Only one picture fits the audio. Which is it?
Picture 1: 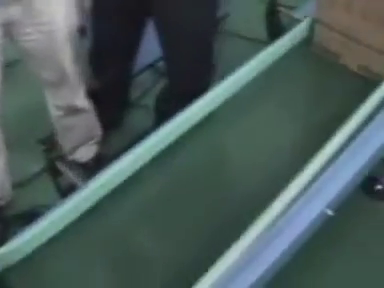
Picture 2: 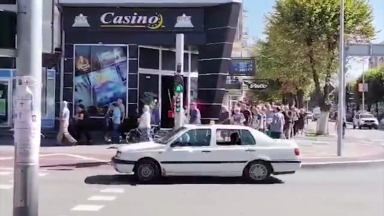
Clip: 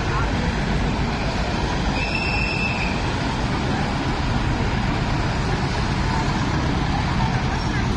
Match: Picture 2